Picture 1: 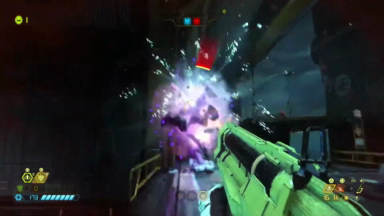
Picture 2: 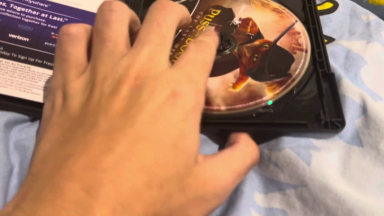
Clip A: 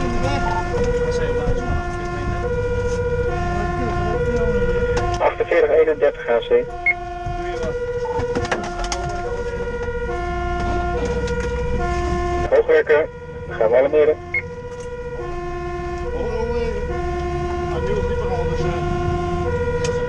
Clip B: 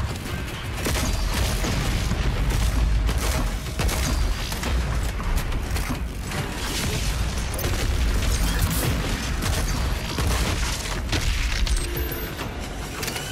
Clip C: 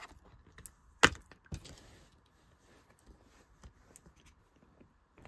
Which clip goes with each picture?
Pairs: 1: B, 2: C